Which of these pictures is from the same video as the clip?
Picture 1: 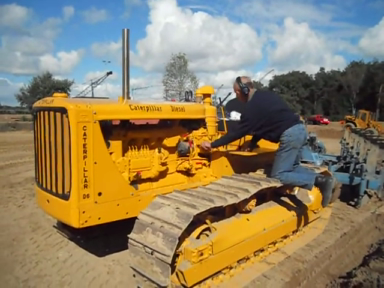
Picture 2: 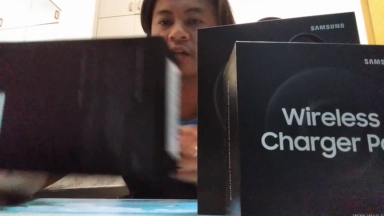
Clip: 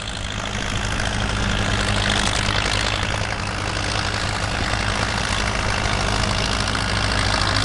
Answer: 1